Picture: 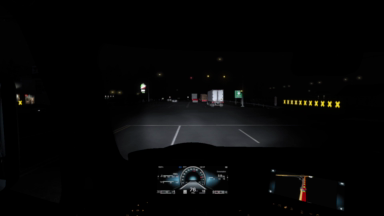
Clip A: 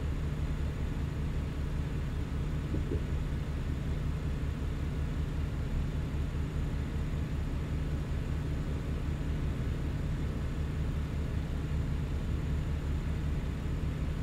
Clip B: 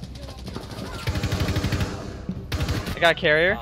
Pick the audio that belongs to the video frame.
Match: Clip A